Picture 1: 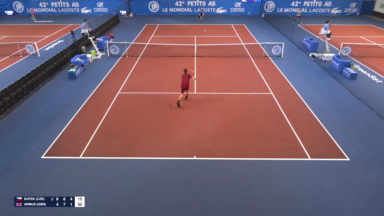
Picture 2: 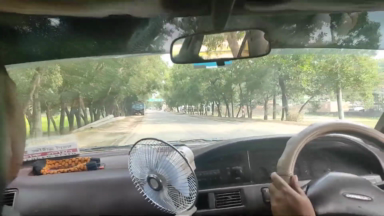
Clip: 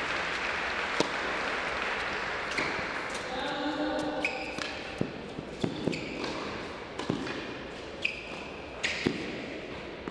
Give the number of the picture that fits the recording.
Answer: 1